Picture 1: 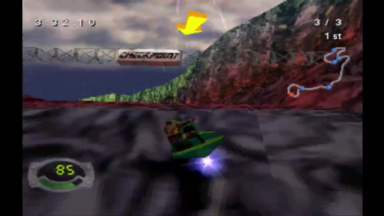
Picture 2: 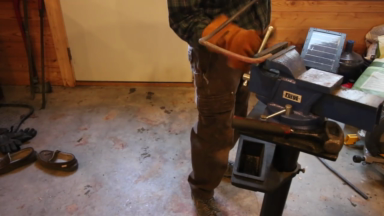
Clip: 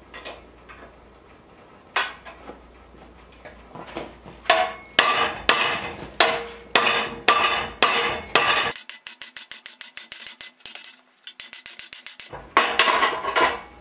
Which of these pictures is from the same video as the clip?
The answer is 2